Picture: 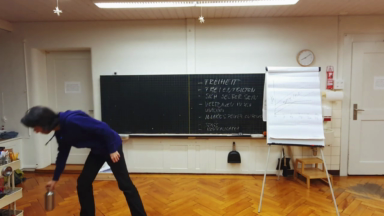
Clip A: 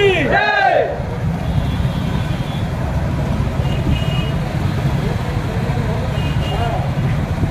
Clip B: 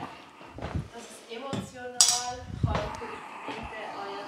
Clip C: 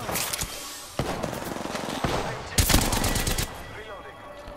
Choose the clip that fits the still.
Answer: B